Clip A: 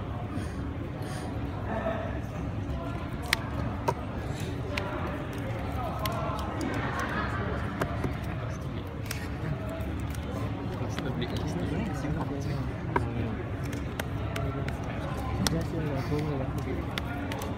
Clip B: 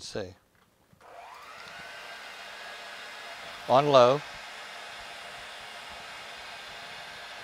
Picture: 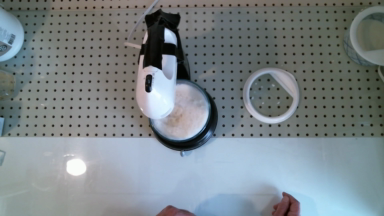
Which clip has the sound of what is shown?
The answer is B